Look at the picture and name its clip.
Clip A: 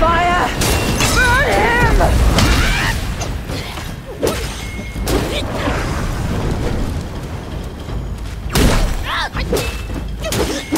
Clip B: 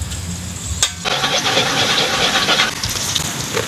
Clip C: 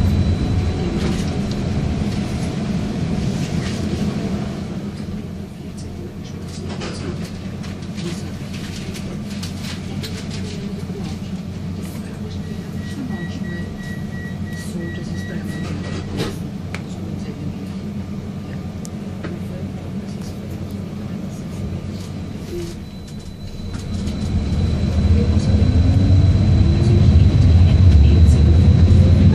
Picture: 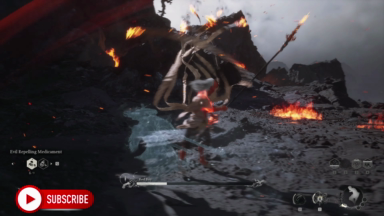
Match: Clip A